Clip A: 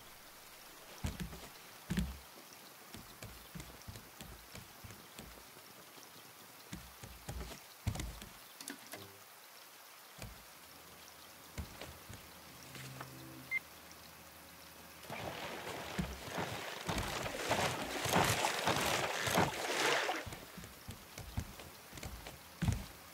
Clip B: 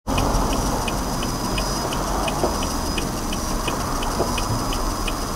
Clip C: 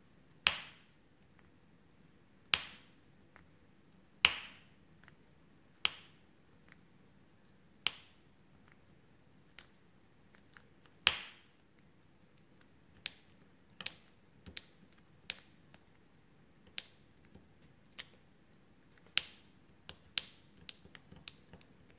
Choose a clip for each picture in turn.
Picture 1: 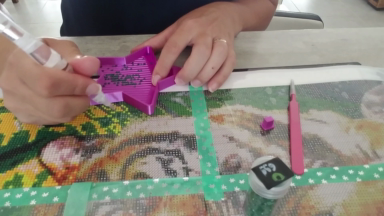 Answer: C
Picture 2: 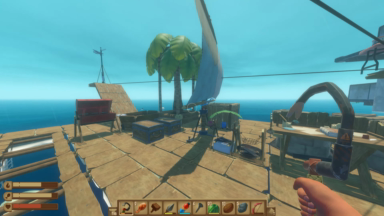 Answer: A